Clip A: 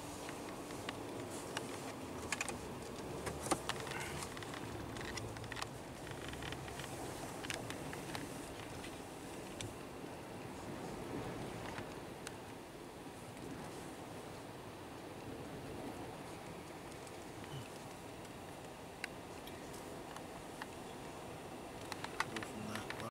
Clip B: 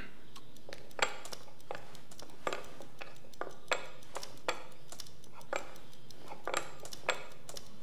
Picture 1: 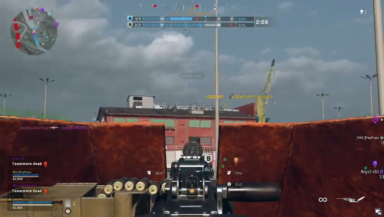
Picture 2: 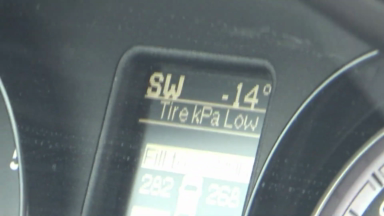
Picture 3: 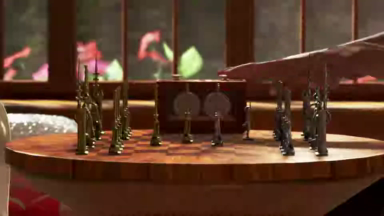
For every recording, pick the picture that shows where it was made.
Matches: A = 2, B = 3